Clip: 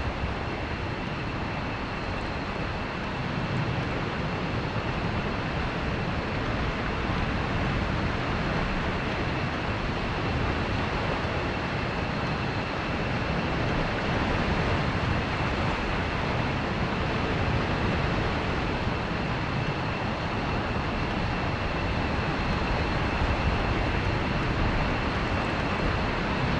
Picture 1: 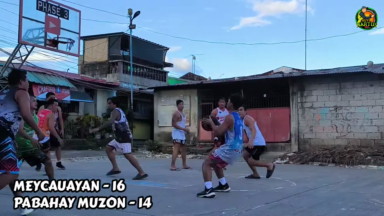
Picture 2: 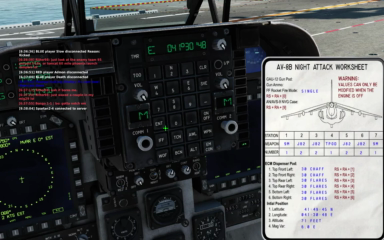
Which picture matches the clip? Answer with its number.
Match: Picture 2